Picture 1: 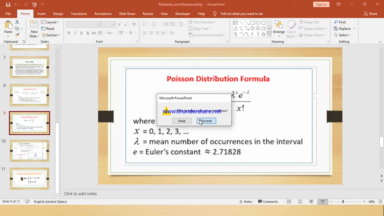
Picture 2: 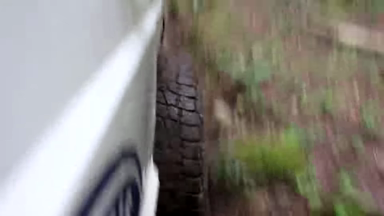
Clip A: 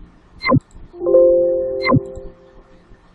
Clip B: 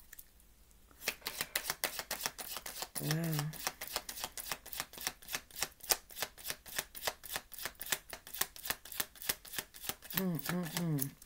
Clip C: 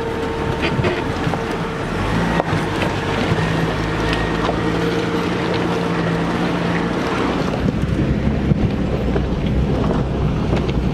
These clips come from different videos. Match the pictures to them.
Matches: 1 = A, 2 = C